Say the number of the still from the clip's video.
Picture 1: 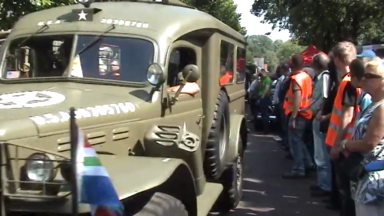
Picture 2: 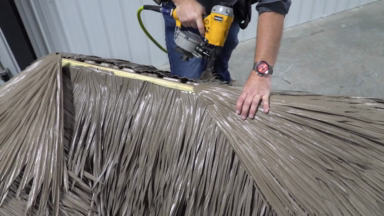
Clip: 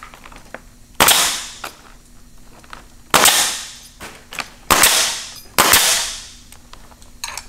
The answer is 2